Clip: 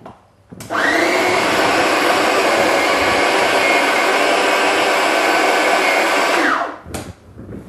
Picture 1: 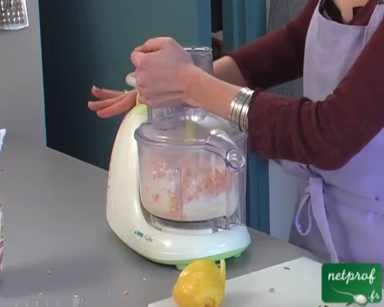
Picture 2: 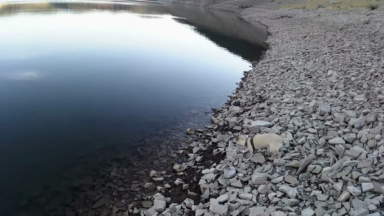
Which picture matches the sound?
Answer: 1